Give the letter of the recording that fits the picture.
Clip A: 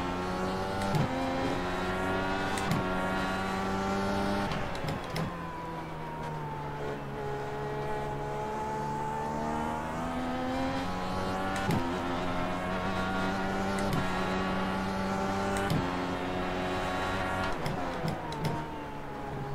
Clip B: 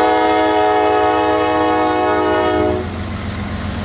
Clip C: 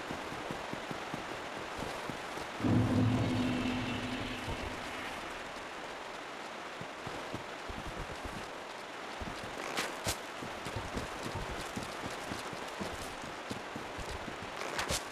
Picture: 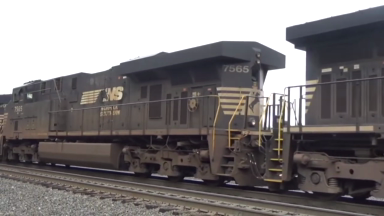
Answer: B